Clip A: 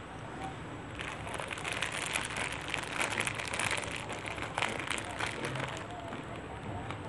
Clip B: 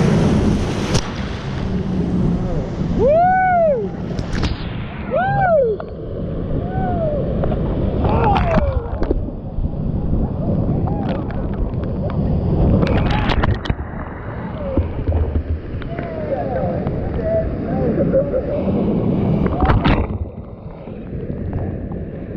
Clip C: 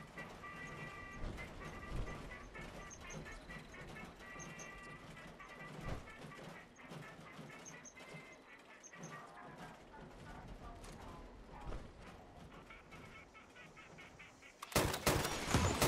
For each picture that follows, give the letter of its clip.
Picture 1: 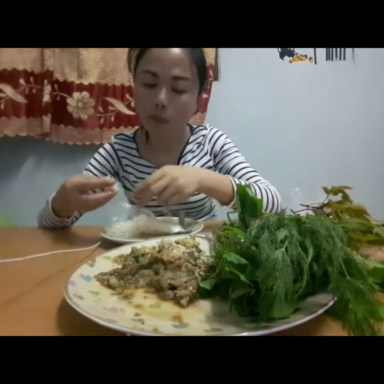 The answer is A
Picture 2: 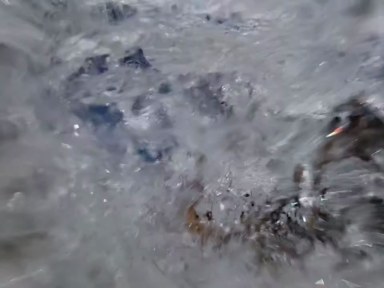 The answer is B